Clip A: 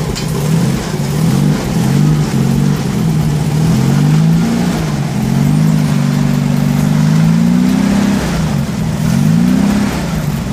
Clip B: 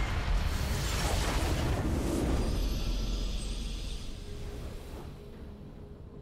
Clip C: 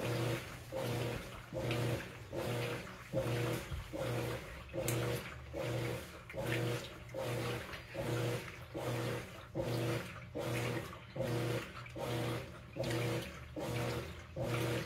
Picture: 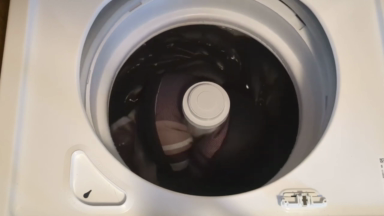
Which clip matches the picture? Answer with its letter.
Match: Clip C